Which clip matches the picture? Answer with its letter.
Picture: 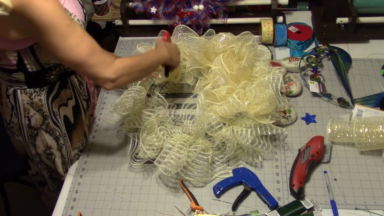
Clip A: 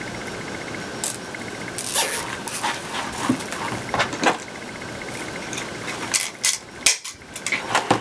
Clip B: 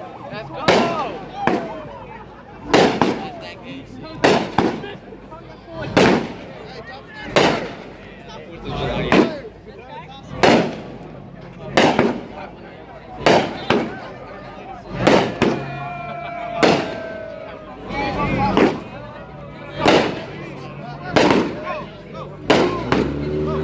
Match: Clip A